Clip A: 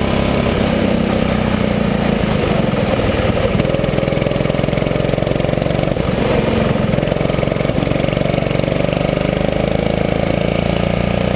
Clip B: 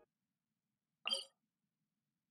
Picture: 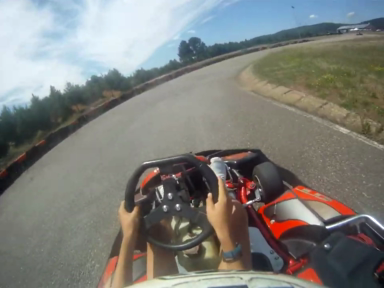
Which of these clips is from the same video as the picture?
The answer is A